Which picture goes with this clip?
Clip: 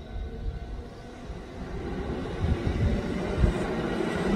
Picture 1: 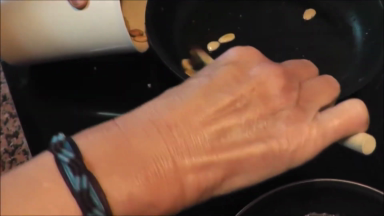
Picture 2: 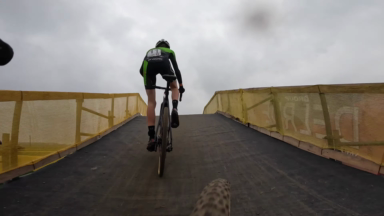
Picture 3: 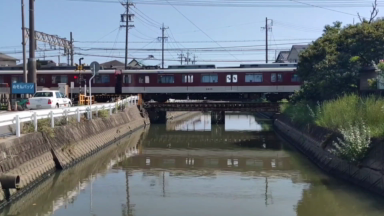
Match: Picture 3